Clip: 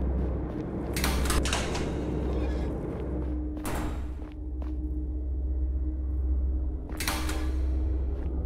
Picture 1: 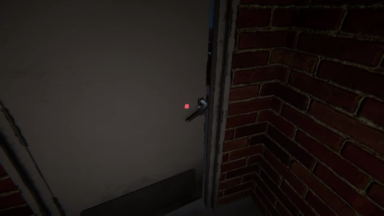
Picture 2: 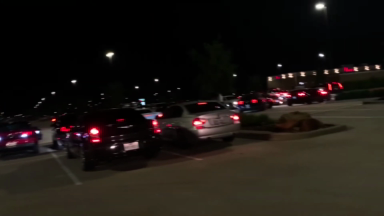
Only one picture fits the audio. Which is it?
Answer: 1